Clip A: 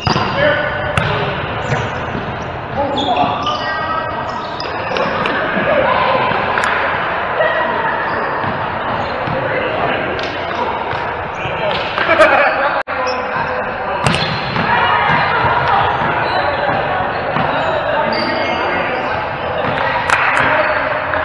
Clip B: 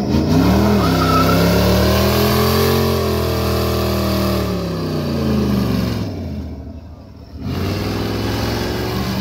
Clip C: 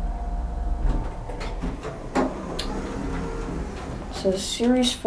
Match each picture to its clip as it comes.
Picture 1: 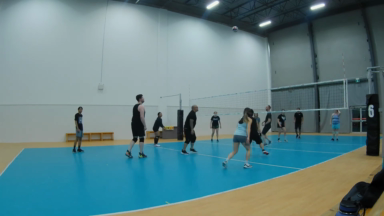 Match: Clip A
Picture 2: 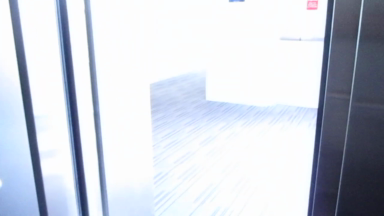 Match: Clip C